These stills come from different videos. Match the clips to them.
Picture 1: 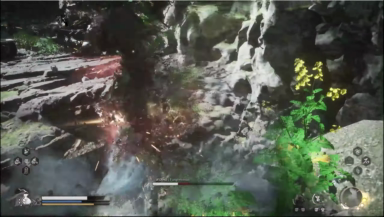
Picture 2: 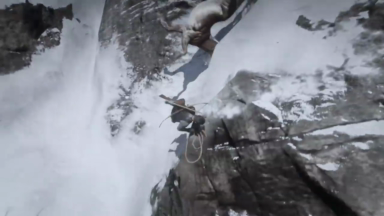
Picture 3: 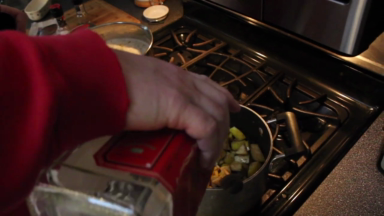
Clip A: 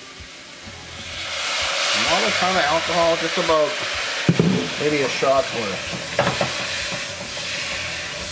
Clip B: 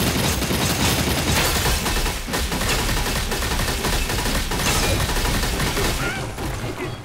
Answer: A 3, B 1